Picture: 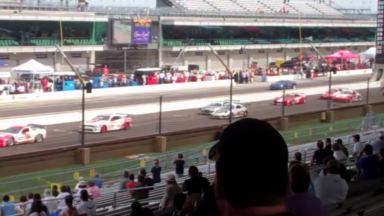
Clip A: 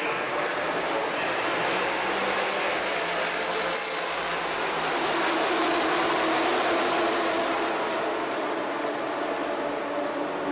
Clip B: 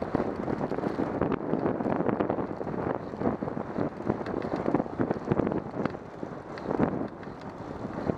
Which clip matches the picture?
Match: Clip A